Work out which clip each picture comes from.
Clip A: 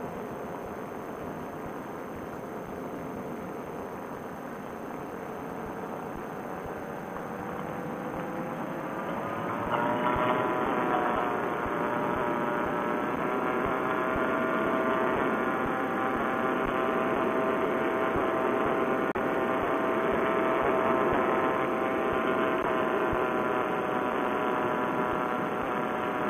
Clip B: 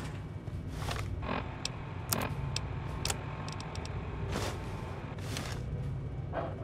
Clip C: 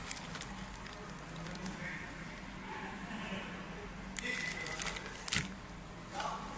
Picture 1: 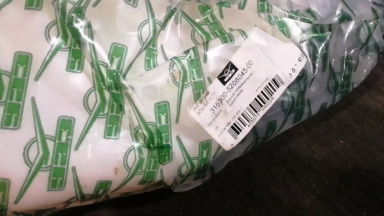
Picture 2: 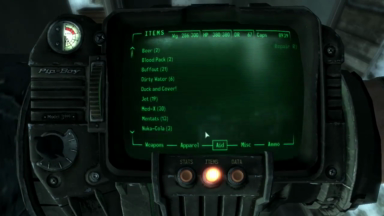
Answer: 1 C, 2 B